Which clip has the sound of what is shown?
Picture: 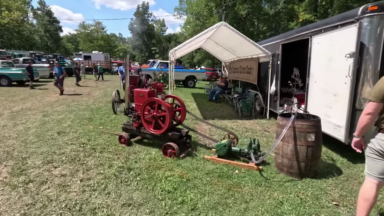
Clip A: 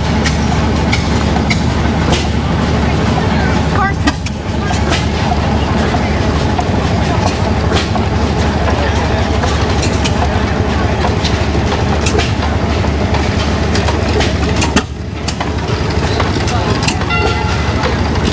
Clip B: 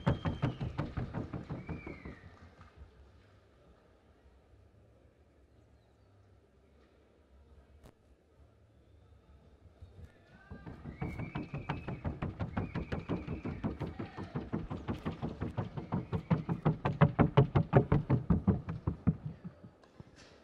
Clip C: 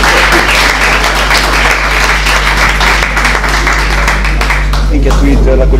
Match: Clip A